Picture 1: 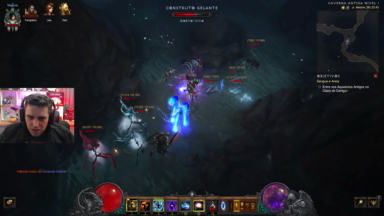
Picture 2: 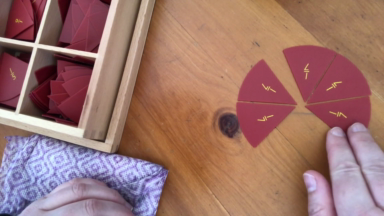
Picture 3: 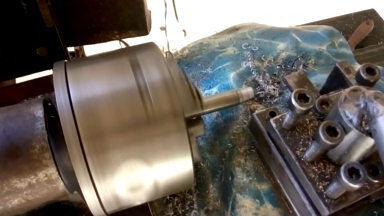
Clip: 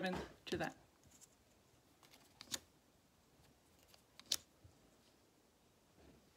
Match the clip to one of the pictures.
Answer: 2